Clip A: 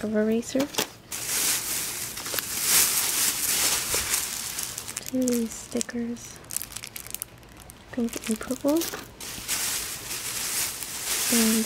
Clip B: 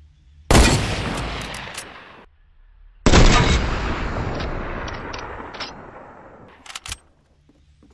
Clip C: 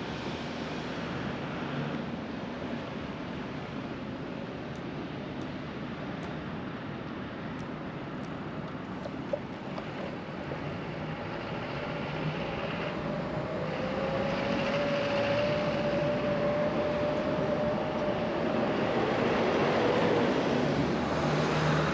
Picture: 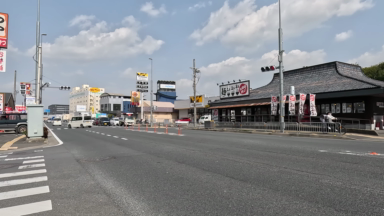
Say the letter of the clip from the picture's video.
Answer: C